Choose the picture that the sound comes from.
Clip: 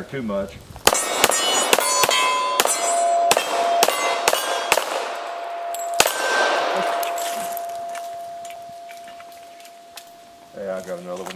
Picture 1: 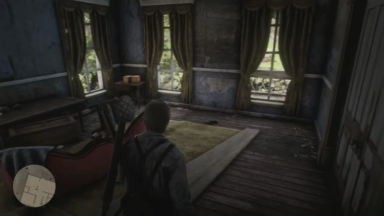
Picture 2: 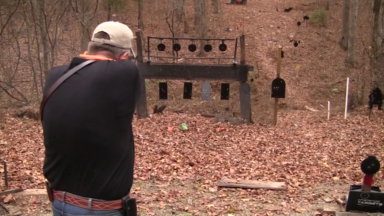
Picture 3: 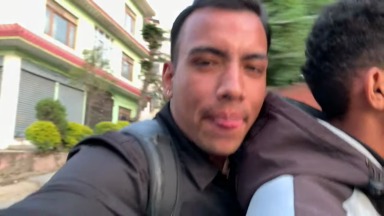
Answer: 2